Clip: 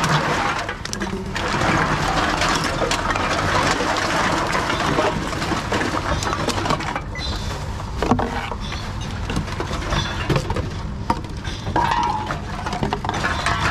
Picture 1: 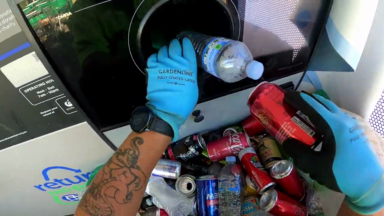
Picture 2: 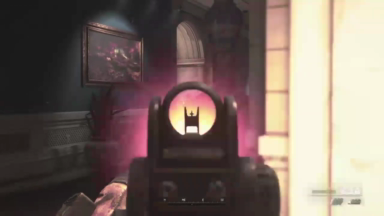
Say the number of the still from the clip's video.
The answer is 1